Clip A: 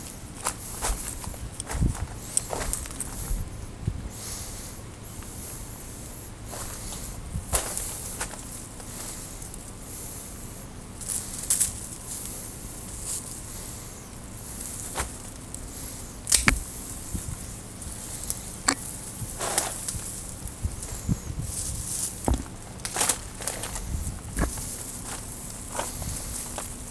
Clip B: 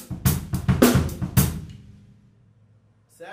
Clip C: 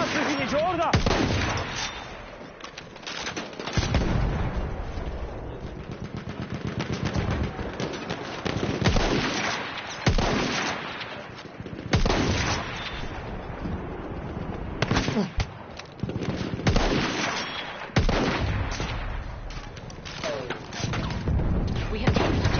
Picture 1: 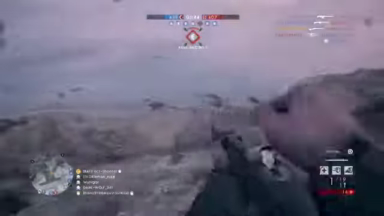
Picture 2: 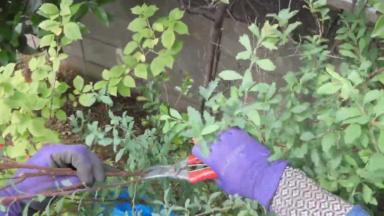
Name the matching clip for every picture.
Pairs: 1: C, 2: A